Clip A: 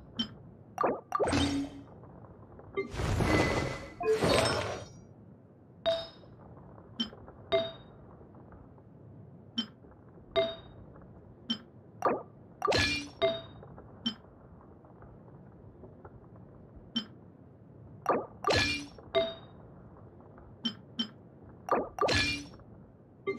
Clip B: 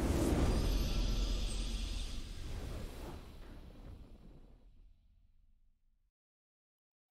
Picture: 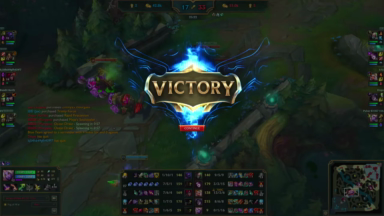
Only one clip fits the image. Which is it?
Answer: B